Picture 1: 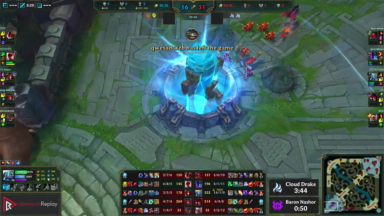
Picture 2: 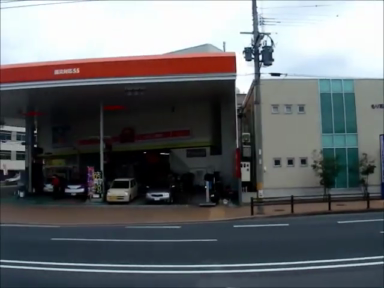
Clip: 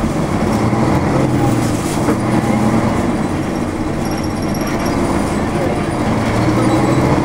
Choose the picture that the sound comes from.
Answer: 2